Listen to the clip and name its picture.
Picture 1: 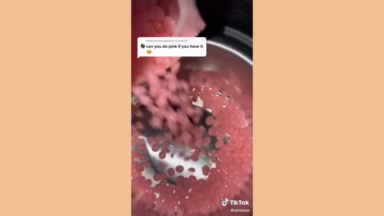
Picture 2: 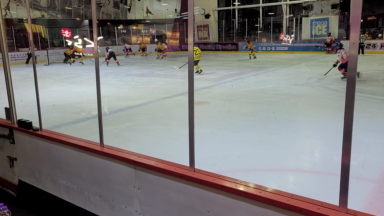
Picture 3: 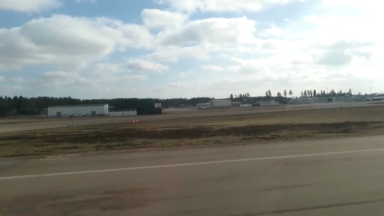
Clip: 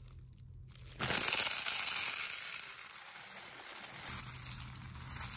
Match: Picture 1